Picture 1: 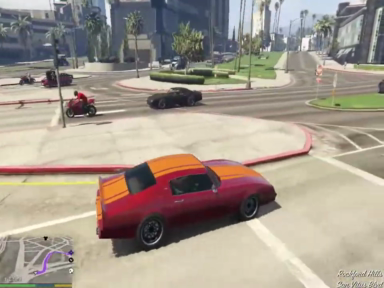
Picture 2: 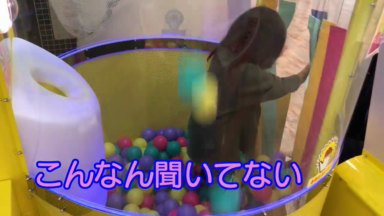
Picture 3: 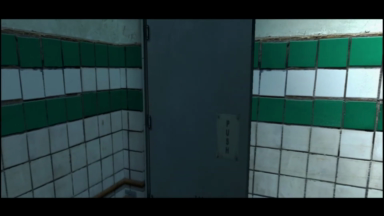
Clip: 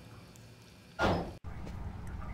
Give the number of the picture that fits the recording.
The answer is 3